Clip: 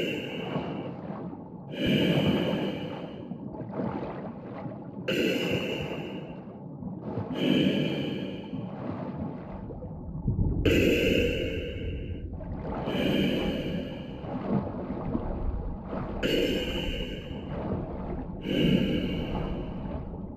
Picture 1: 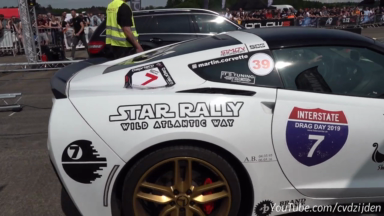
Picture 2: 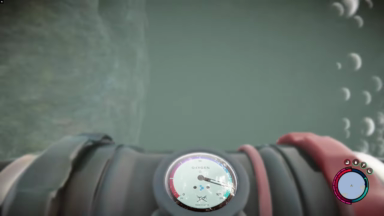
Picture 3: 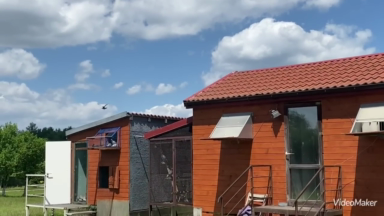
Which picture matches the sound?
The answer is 2